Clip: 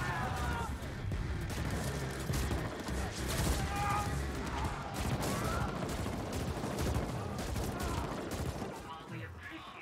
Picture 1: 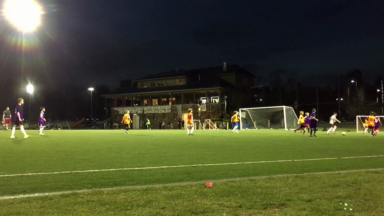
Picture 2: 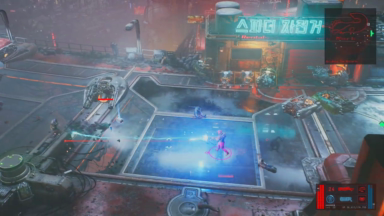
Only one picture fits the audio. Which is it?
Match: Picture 2